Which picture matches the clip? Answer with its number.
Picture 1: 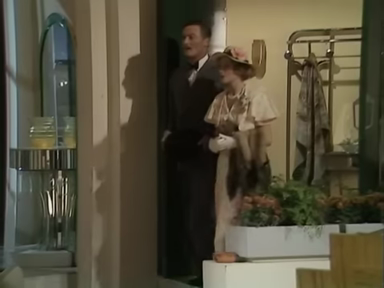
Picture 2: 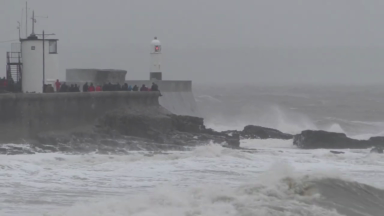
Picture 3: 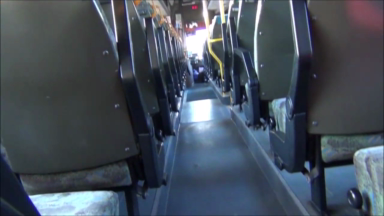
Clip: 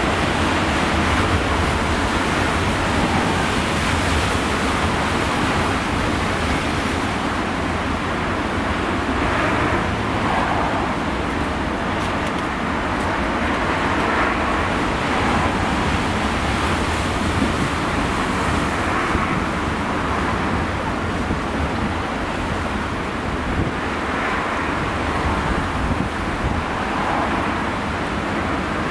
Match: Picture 2